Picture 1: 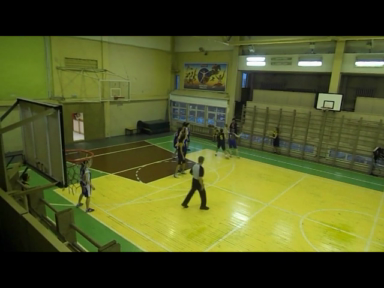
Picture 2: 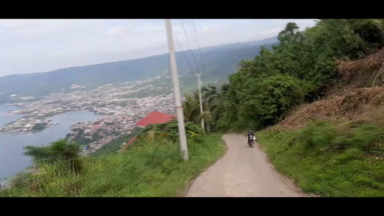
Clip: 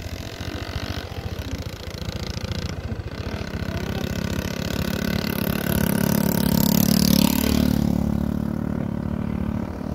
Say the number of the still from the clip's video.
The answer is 2